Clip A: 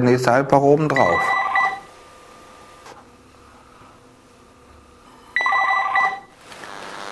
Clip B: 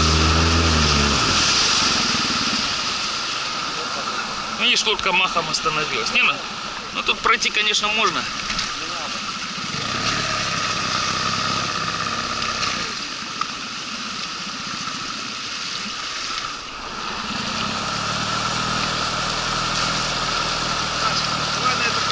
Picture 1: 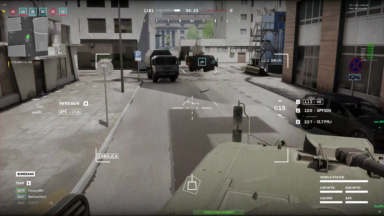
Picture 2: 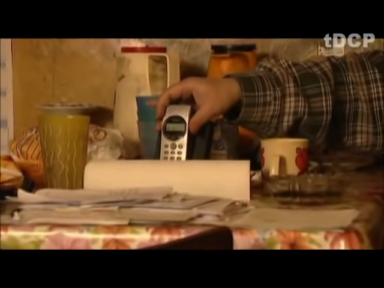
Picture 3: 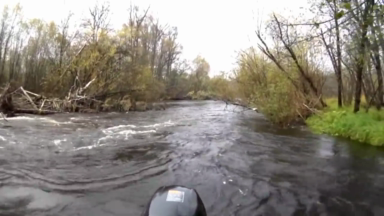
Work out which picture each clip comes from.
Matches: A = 2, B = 3